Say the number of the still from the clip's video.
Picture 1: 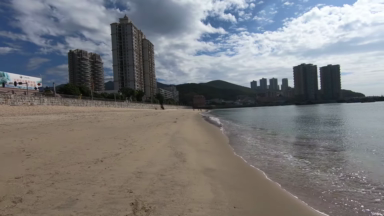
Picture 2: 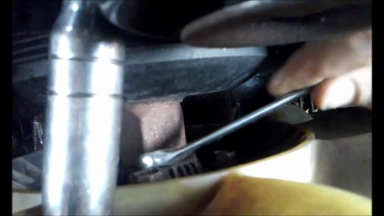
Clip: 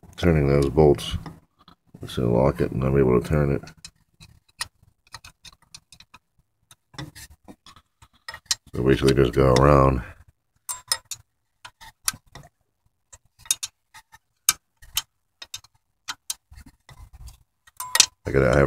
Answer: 2